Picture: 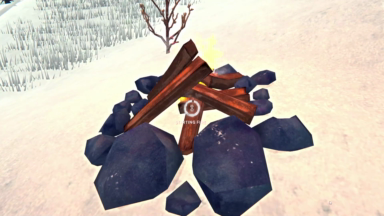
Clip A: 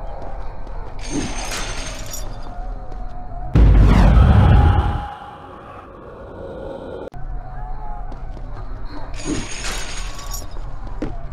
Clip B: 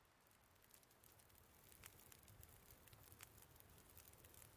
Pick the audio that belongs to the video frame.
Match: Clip B